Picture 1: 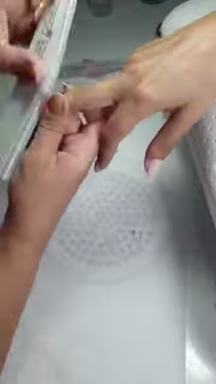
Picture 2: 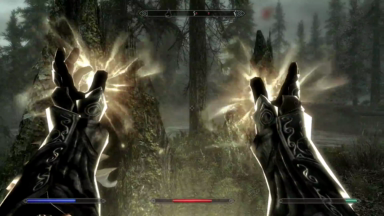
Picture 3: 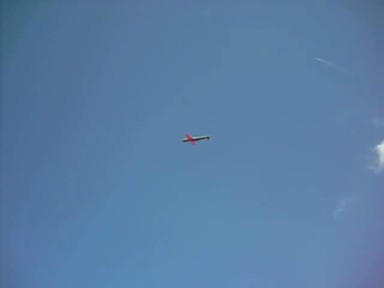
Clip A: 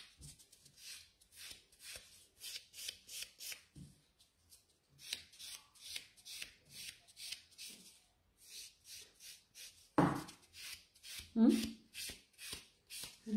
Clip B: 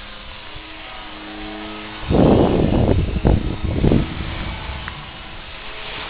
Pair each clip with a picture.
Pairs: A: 1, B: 3